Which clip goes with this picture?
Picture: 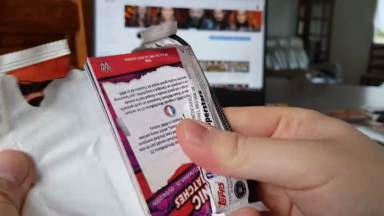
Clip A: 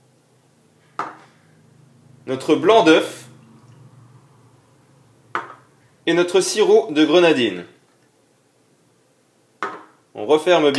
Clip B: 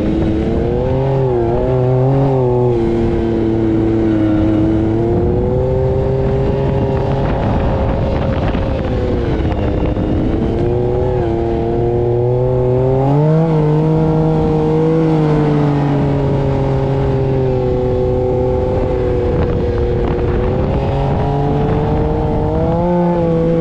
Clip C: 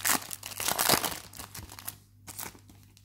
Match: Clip C